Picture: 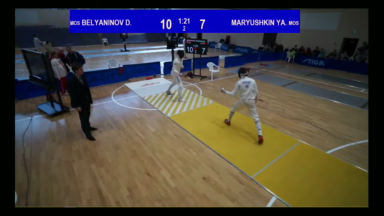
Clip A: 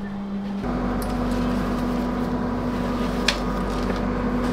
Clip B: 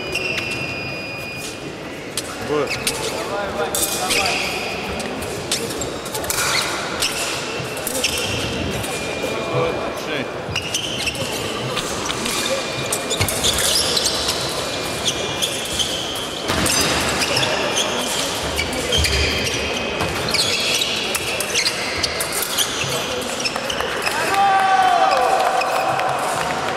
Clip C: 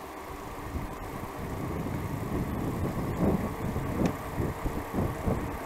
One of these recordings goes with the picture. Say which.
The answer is B